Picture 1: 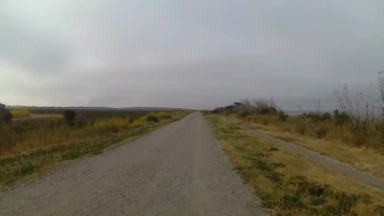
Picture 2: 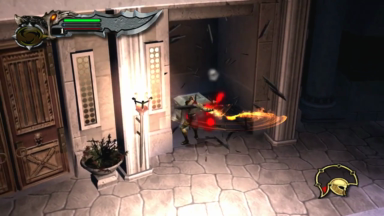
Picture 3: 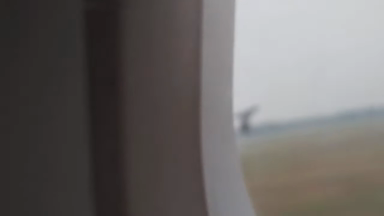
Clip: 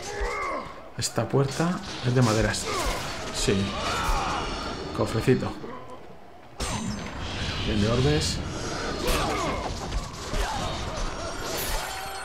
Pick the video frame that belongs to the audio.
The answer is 2